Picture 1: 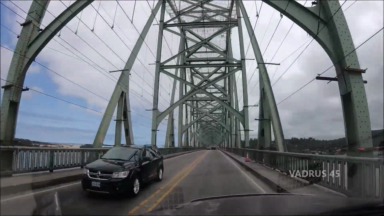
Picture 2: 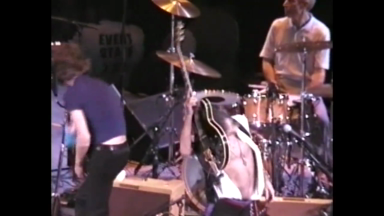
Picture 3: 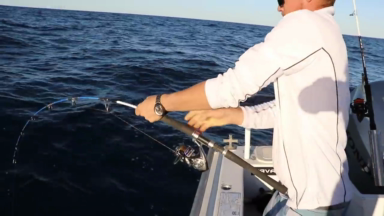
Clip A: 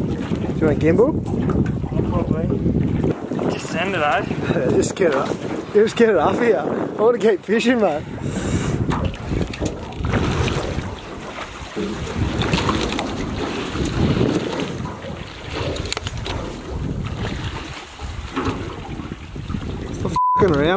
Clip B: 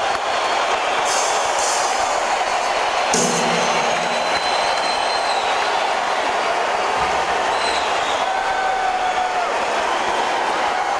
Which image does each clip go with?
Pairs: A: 3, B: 2